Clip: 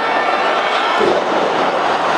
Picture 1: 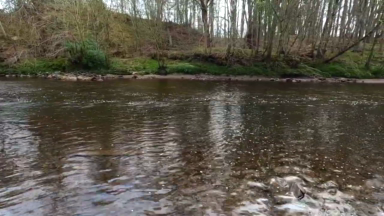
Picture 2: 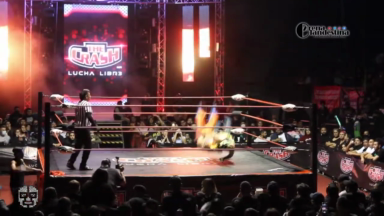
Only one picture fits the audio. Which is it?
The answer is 2